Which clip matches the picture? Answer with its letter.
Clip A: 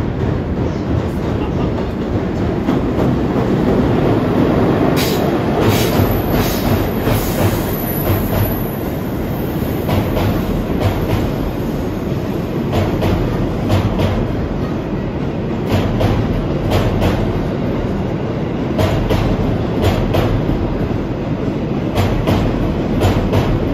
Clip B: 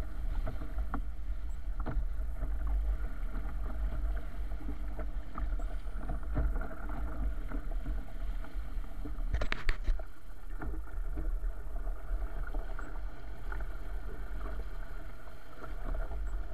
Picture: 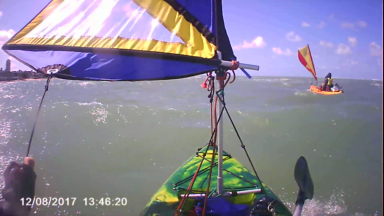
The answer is B